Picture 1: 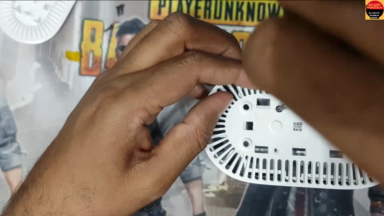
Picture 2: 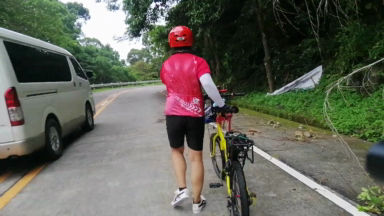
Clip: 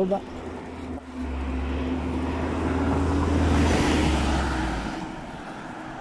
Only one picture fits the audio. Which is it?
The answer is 2